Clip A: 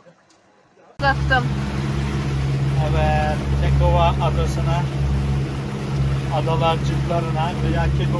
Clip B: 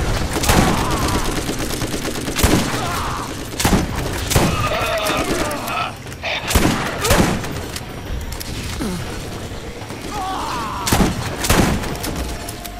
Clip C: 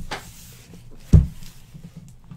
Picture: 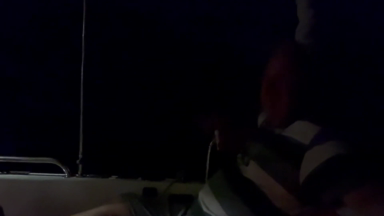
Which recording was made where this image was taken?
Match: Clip A